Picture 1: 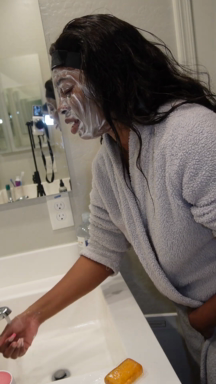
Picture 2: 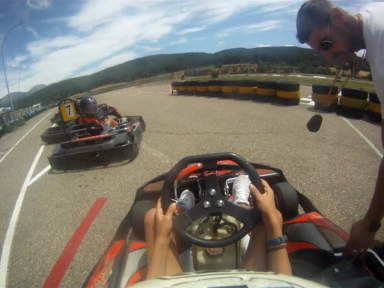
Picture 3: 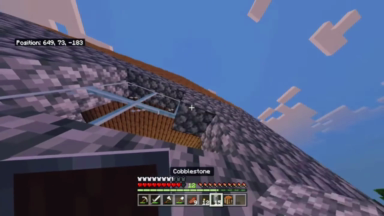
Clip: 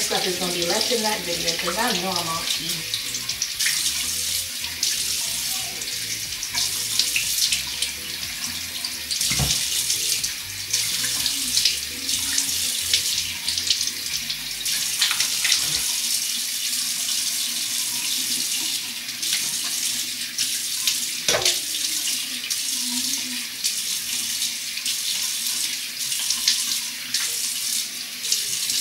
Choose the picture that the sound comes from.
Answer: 1